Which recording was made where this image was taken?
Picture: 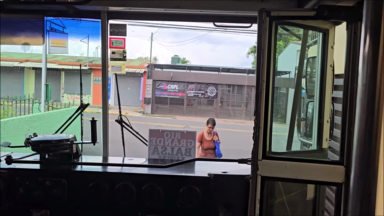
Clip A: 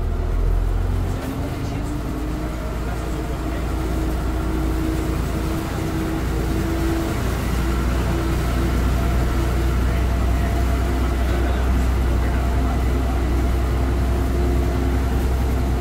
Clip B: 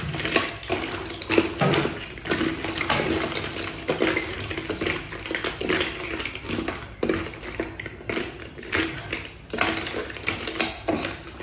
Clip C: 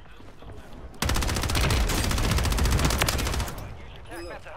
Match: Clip A